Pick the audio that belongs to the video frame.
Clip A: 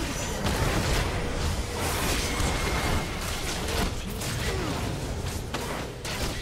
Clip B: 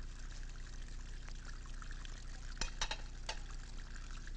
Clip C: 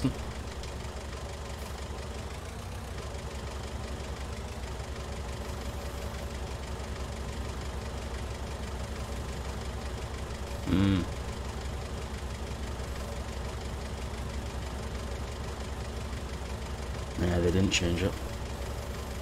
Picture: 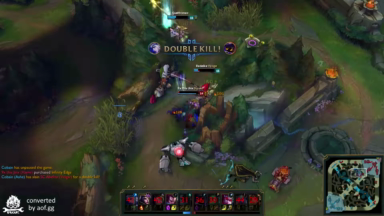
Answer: A